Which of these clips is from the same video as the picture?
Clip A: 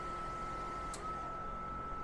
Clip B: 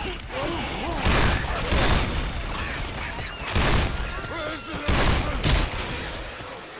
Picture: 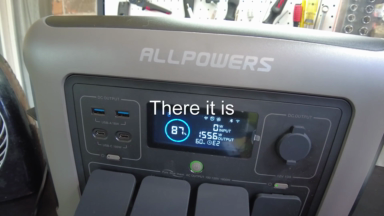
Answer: A